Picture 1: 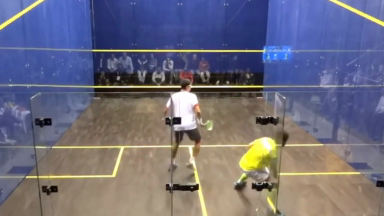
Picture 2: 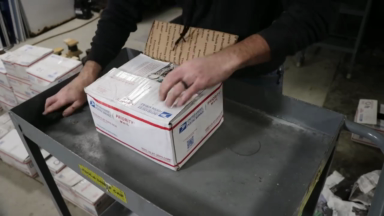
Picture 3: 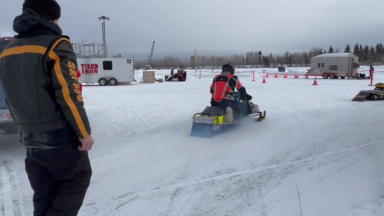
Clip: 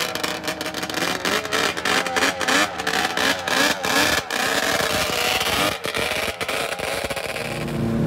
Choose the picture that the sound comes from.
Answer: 3